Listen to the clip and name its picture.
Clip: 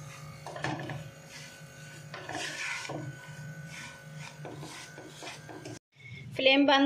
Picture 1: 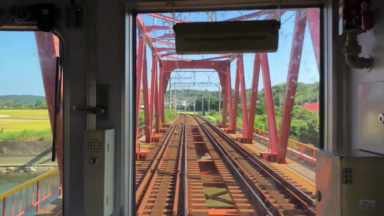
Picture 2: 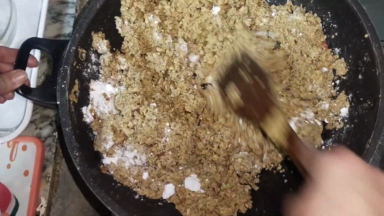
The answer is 2